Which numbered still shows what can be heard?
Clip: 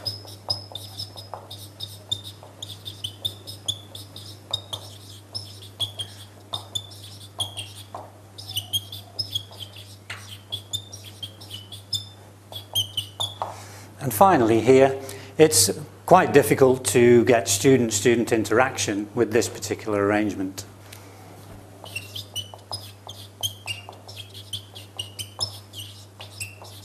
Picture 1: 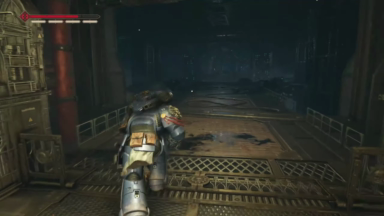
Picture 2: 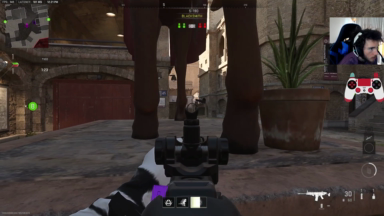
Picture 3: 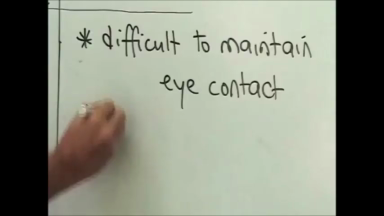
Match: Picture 3